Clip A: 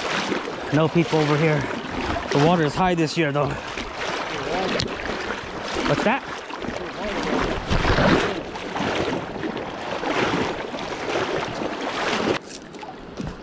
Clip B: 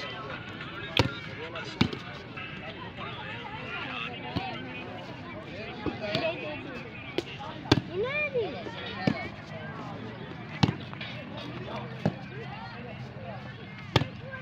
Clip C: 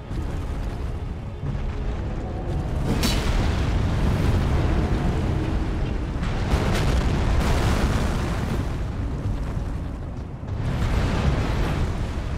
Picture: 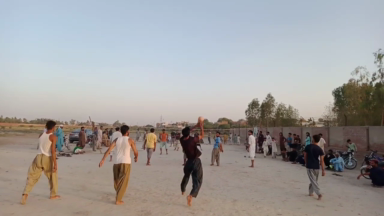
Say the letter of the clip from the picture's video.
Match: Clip B